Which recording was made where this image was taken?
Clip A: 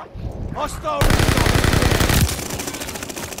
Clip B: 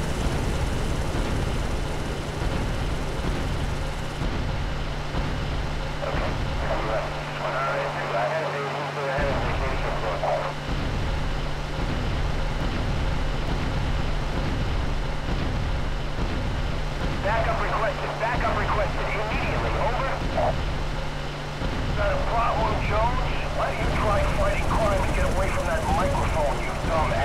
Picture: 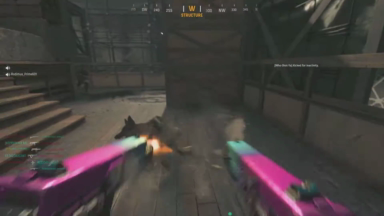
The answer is A